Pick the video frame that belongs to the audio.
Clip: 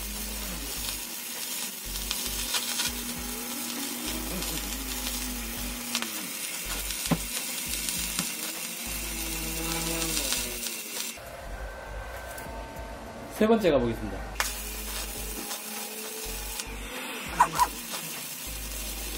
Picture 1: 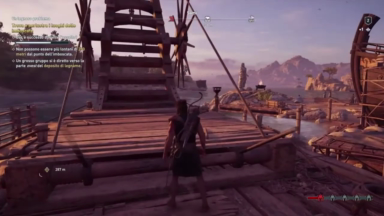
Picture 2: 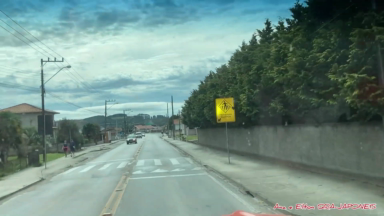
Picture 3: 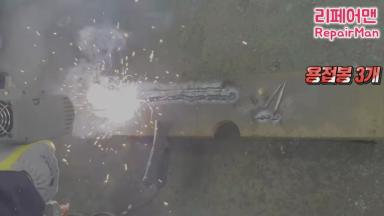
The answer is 3